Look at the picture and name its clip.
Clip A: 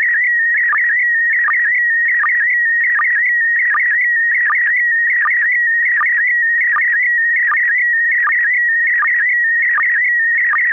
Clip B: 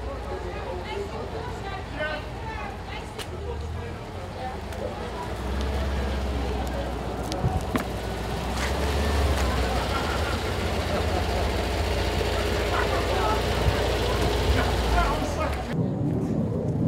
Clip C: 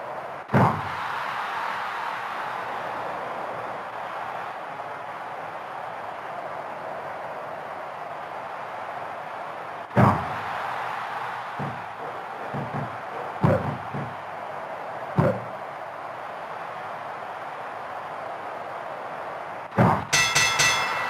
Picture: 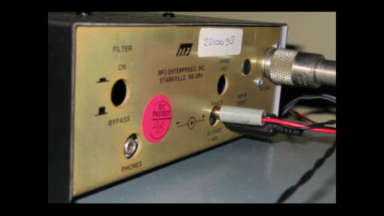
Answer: A